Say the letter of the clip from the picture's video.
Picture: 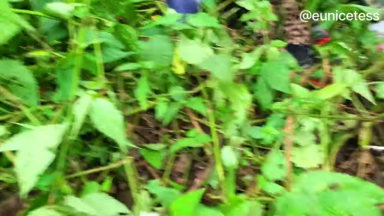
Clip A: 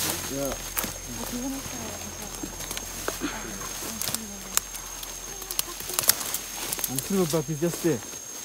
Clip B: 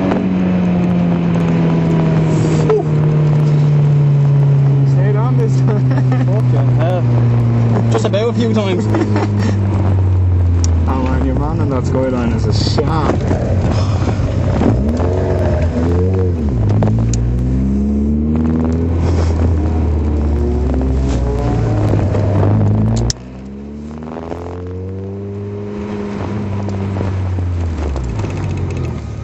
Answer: A